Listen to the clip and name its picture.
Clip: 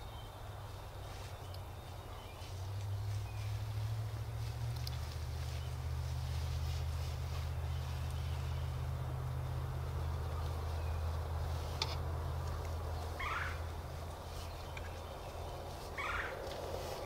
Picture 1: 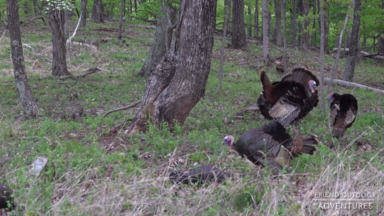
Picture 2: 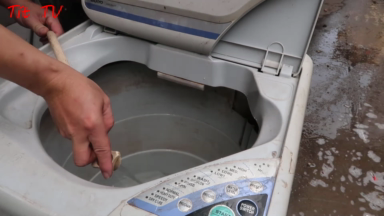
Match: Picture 1